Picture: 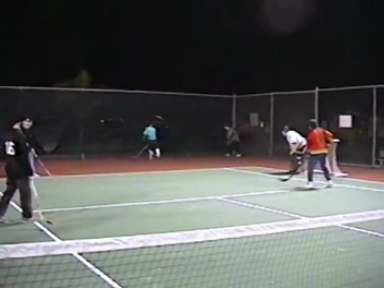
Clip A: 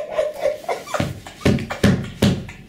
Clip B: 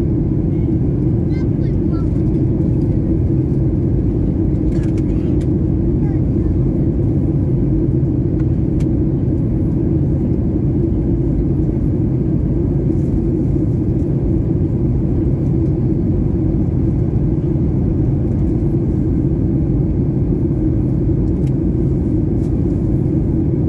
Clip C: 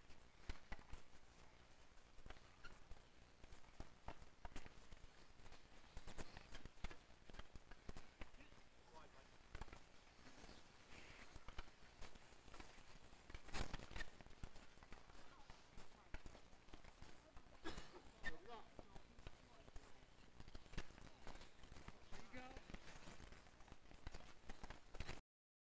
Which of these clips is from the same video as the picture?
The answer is C